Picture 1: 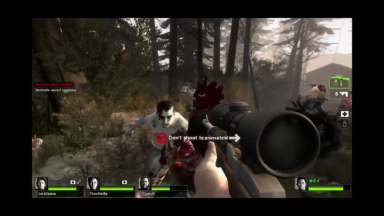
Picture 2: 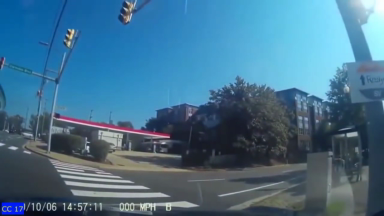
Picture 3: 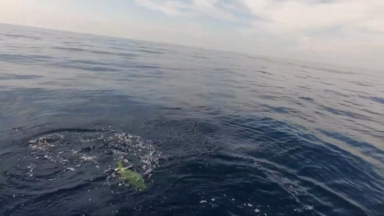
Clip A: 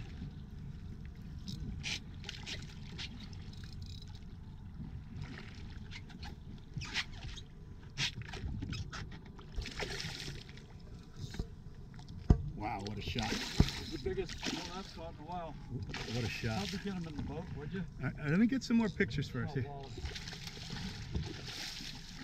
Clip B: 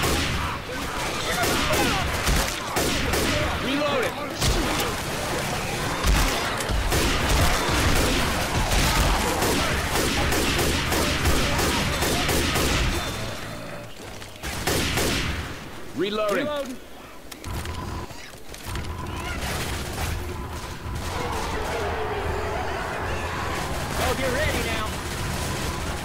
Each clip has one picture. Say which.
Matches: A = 3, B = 1